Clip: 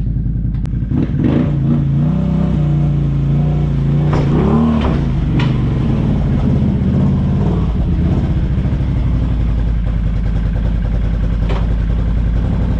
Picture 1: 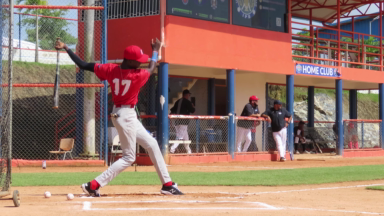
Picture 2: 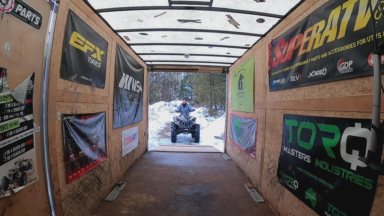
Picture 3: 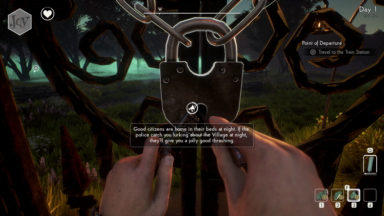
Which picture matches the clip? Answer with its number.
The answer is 2